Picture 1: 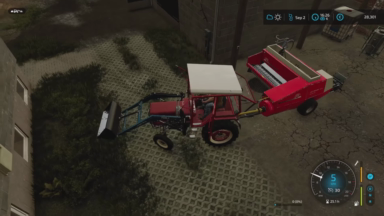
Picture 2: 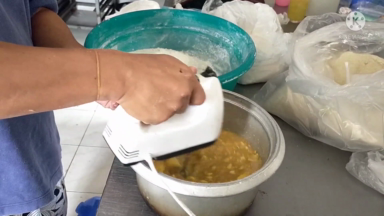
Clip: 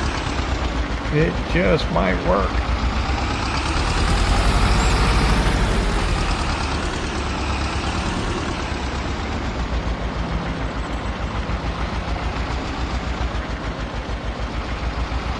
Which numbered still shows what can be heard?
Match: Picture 1